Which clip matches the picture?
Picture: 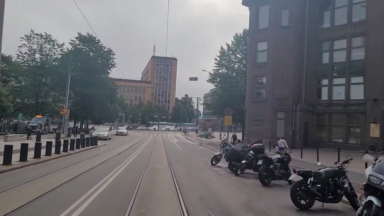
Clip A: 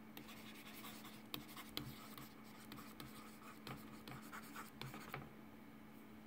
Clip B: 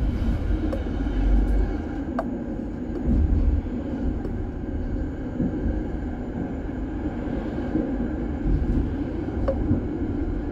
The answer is B